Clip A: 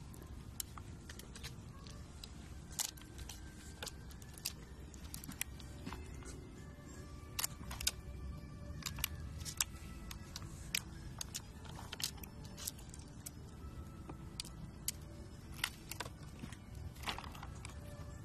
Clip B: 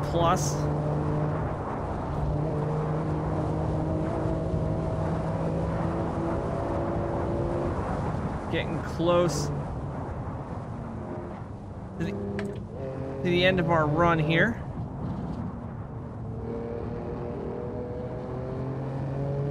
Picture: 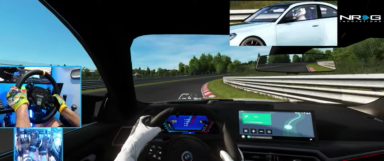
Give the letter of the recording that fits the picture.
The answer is B